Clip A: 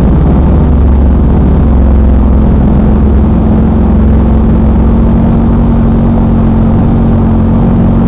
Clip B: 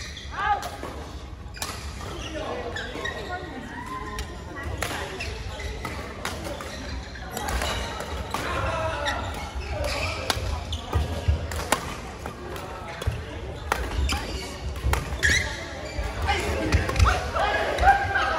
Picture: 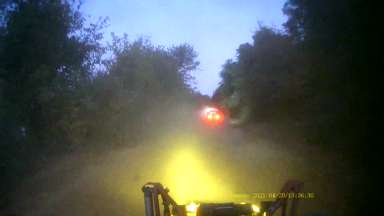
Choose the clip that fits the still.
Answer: A